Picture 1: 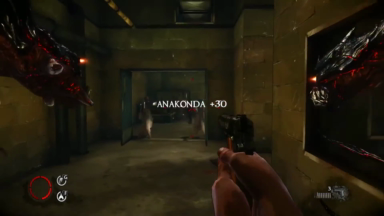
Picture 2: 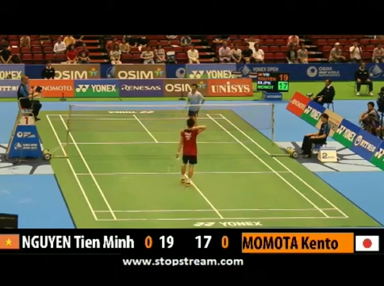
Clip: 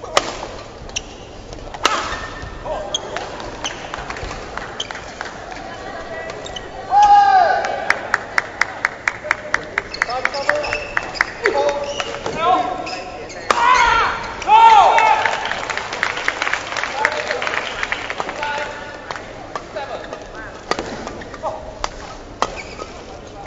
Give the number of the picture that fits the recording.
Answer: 2